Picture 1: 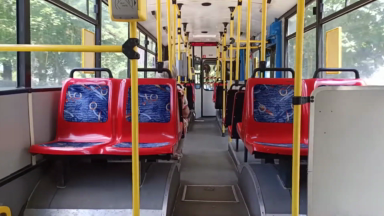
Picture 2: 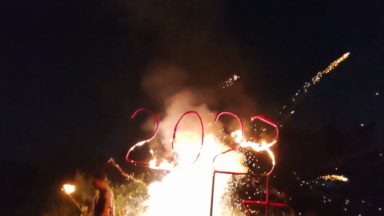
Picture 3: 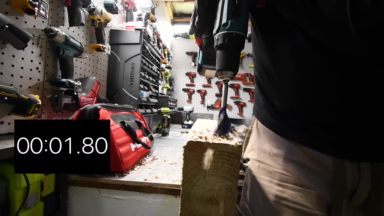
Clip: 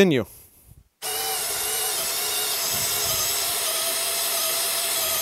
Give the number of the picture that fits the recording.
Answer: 3